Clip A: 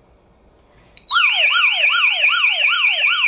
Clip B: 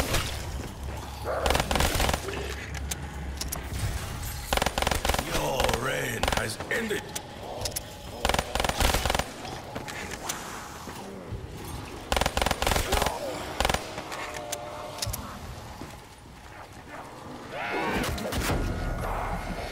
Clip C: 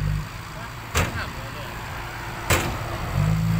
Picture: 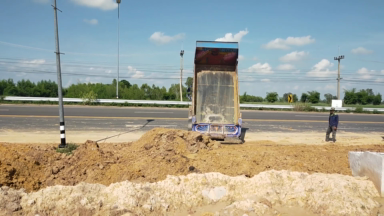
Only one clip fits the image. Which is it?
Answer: C